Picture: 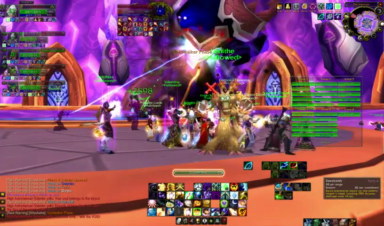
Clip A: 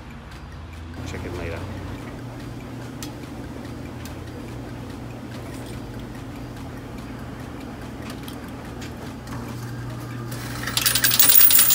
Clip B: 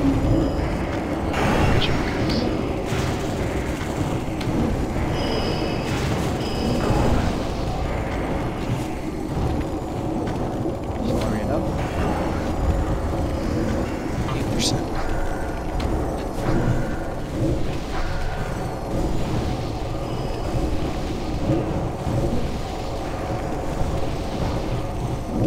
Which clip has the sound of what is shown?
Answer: B